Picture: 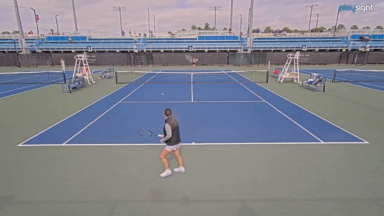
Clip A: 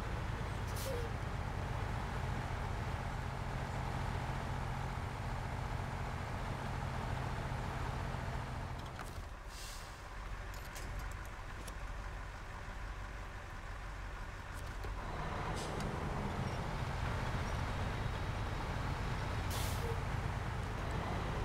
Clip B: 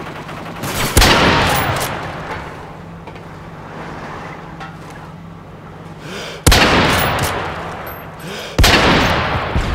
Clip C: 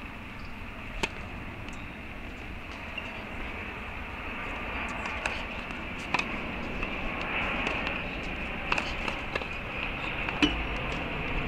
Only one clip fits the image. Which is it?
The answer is C